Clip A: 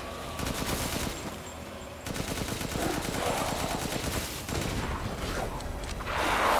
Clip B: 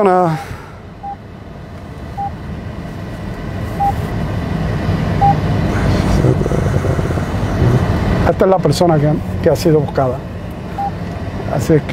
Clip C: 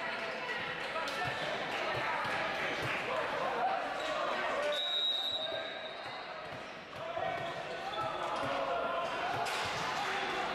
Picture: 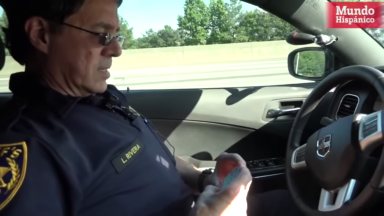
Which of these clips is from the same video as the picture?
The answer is B